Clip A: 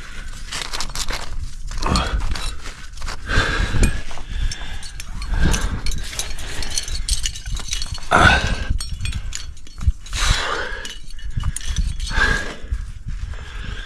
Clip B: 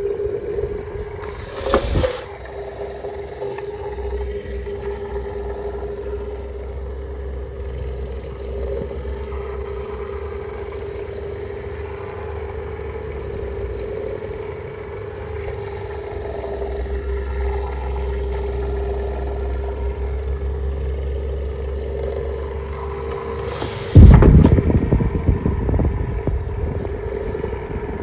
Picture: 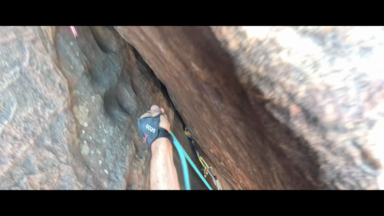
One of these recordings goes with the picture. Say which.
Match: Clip A